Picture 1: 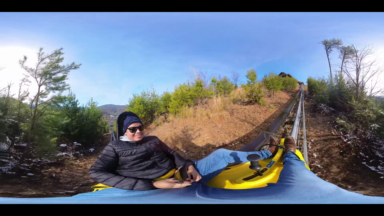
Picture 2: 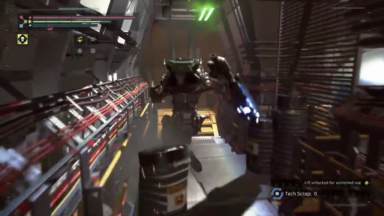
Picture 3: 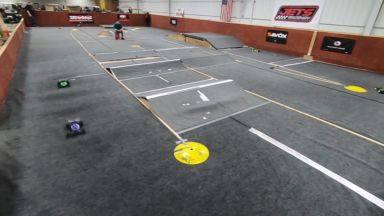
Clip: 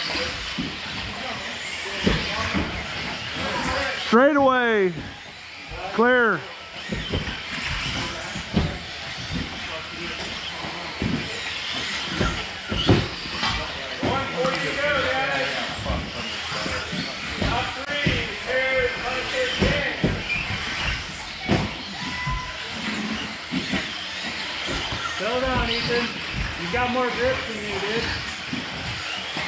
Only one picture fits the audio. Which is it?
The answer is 3